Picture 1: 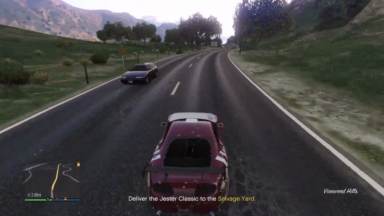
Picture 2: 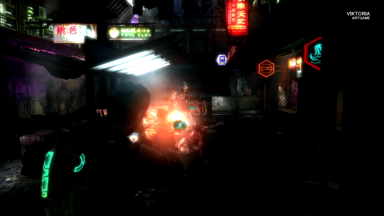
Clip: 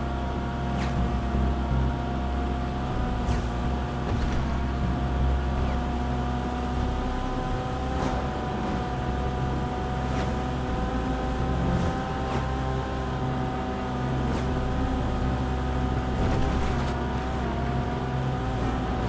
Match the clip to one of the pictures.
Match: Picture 1